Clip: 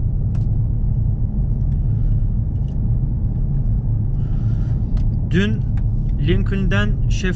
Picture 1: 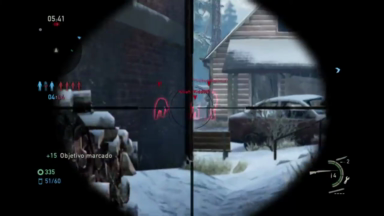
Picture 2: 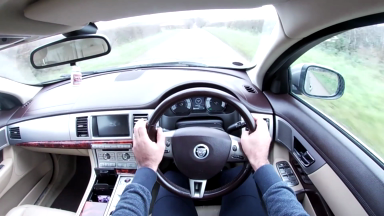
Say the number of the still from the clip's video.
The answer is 2